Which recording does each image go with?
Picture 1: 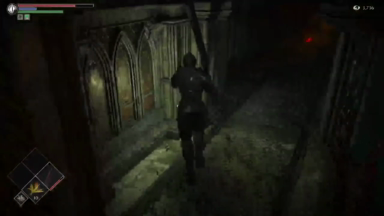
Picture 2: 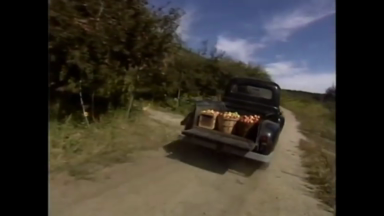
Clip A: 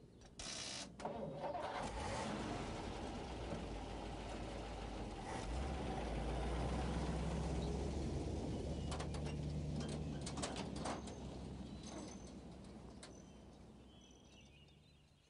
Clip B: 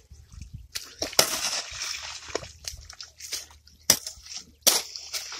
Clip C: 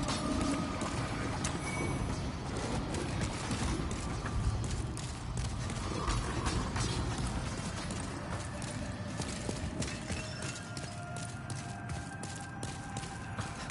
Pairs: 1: C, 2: A